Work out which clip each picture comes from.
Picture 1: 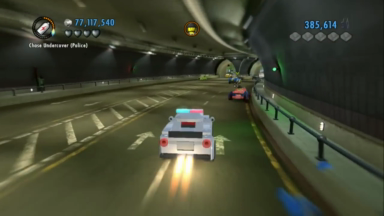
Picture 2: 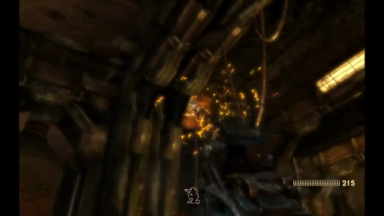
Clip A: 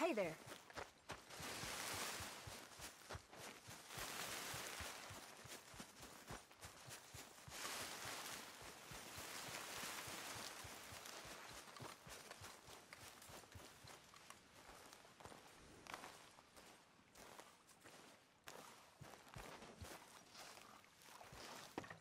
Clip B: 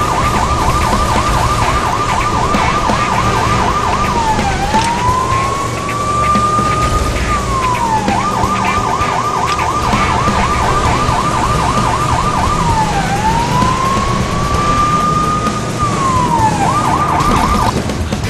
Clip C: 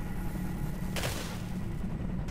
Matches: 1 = B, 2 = C